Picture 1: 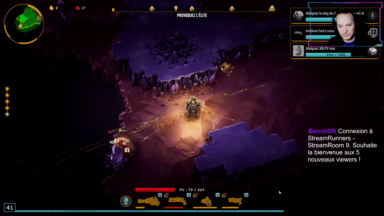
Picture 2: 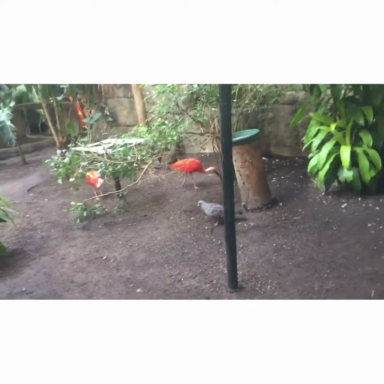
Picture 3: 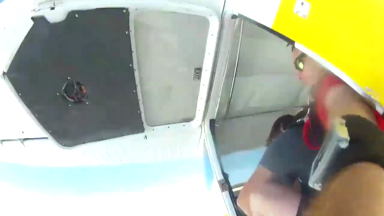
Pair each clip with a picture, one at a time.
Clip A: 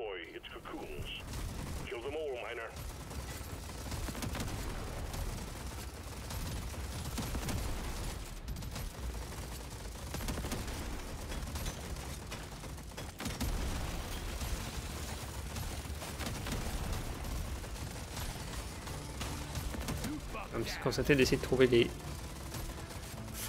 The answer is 1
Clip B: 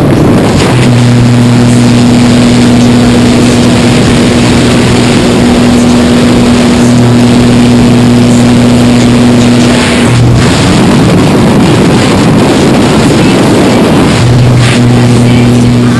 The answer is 3